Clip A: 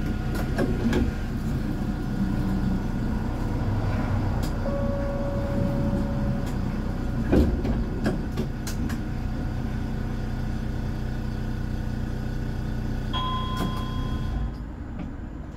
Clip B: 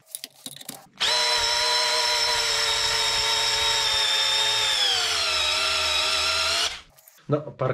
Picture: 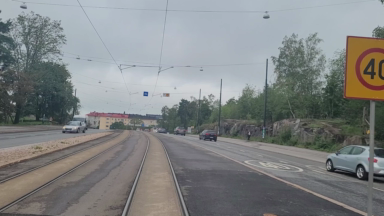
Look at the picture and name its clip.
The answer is A